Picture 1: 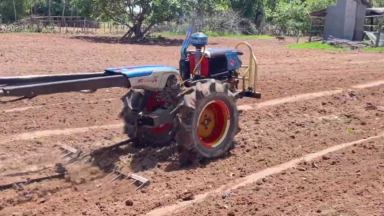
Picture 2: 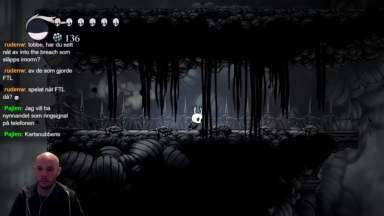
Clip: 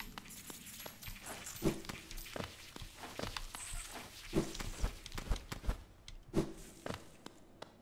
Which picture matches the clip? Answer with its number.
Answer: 2